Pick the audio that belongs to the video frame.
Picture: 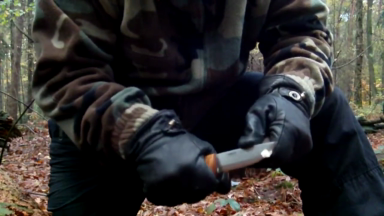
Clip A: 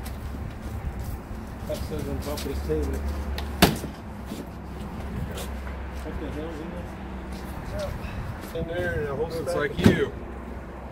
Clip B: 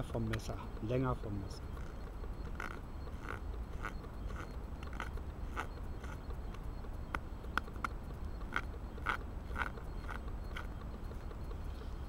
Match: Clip B